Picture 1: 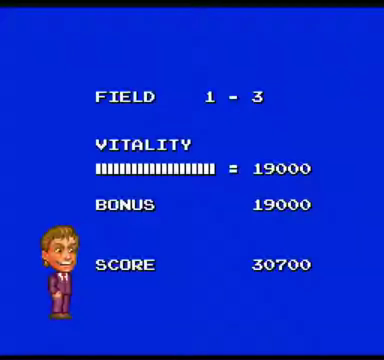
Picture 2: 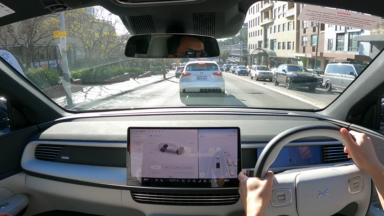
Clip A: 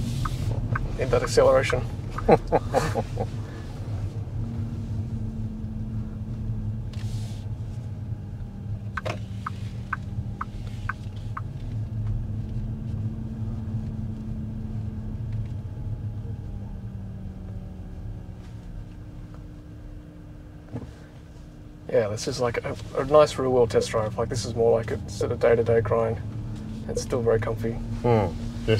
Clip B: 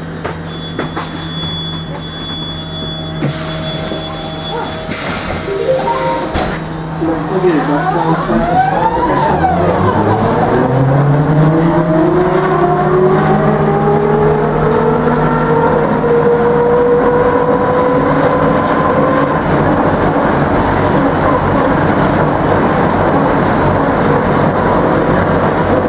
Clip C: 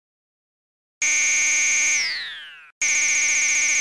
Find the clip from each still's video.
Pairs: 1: C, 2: A